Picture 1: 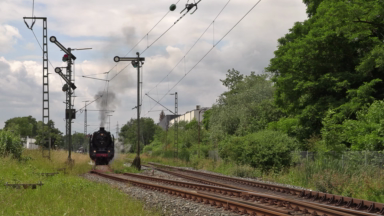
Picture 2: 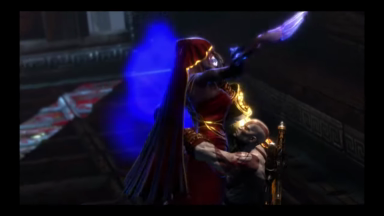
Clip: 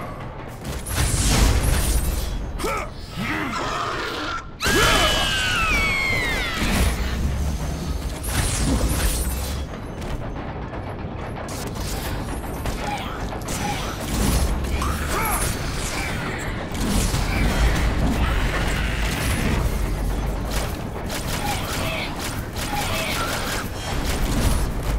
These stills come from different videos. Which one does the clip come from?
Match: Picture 2